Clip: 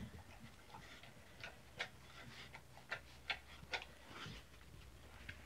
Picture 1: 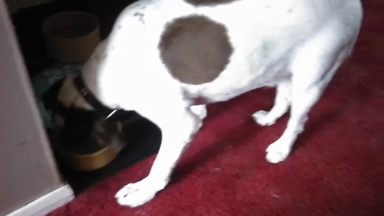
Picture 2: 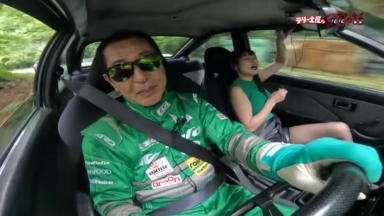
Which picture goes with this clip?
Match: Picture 1